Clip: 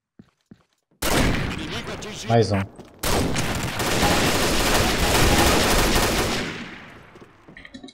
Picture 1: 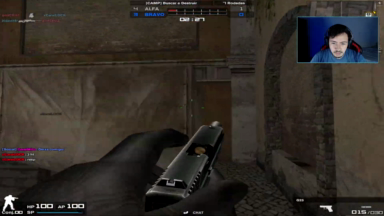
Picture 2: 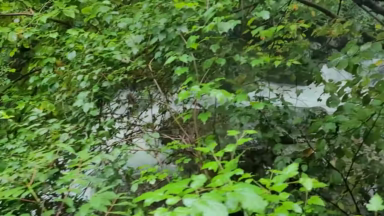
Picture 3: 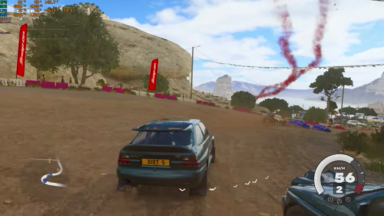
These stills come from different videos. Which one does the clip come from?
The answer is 1